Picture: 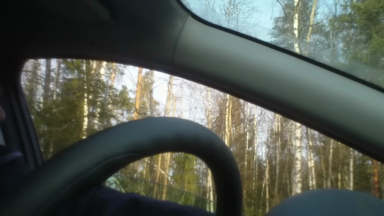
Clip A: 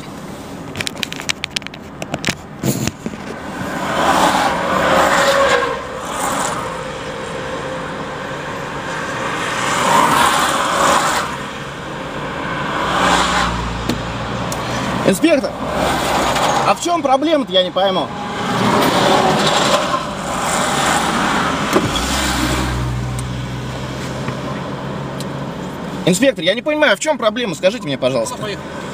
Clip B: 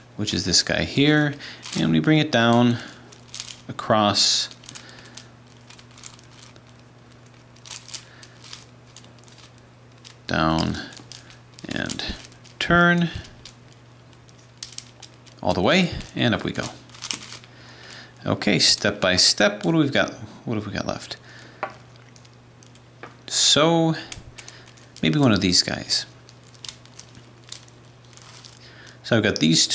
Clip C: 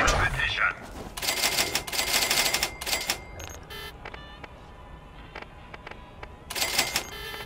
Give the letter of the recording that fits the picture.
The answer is A